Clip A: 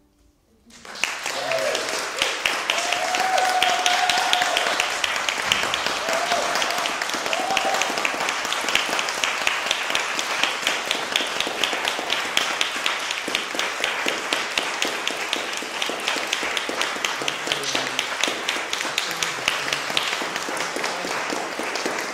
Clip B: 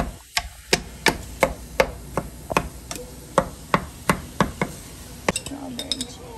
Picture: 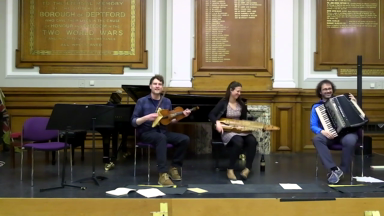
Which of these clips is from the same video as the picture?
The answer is A